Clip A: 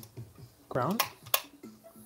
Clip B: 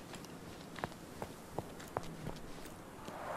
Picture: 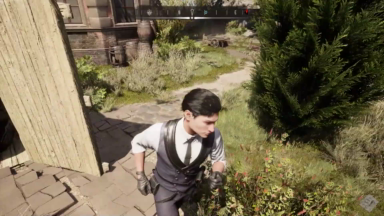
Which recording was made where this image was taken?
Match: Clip B